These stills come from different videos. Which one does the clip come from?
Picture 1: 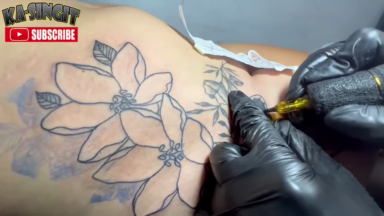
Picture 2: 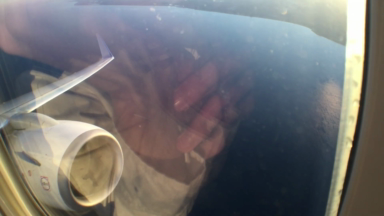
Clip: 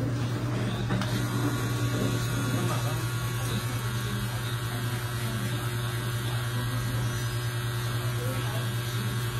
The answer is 1